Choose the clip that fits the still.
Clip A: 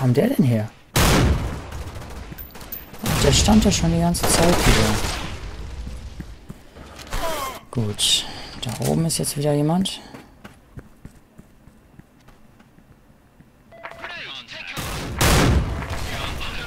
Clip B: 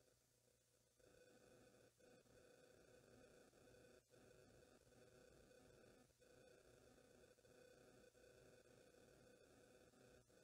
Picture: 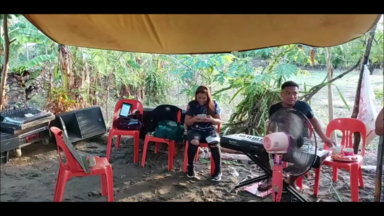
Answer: B